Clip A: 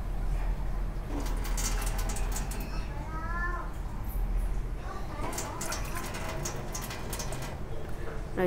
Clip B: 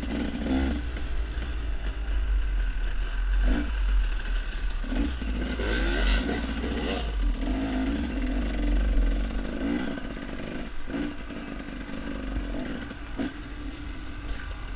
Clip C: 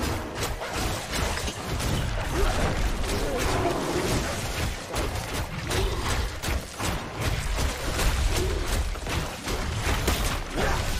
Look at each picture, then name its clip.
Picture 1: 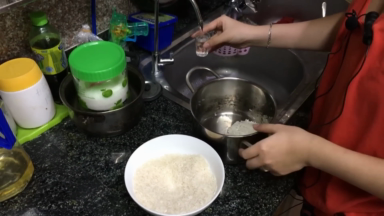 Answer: A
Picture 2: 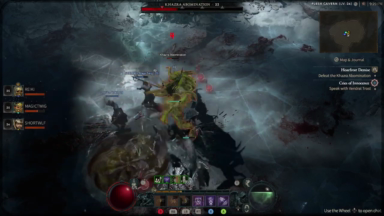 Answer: C